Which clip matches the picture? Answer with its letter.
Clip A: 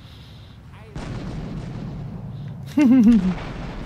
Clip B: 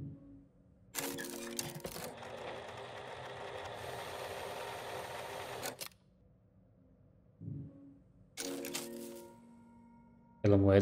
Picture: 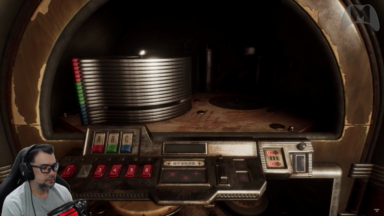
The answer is B